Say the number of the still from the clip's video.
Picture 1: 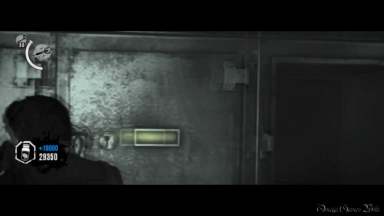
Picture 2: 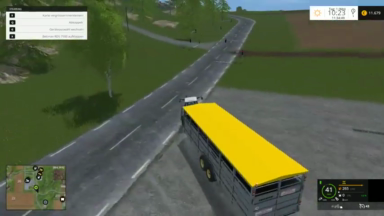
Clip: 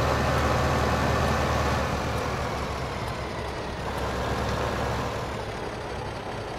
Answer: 2